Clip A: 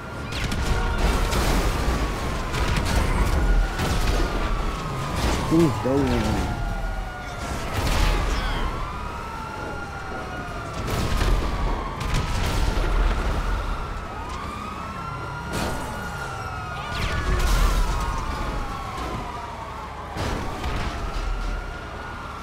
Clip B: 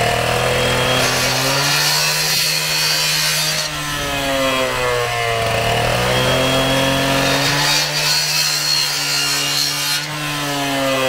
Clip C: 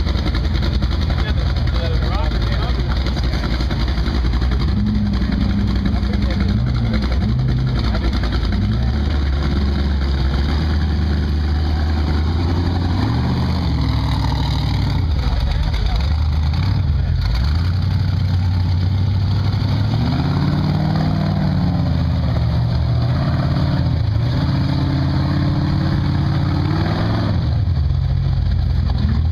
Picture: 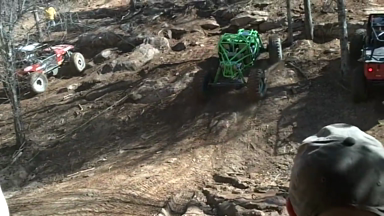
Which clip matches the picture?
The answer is C